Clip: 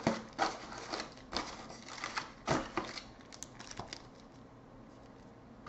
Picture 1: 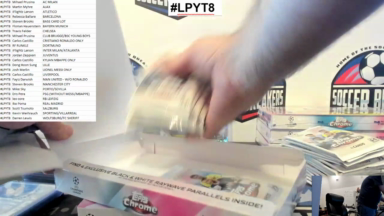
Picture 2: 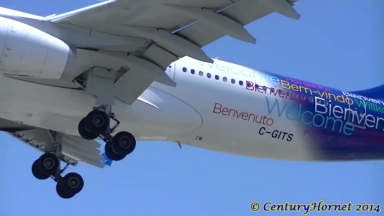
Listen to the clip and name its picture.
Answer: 1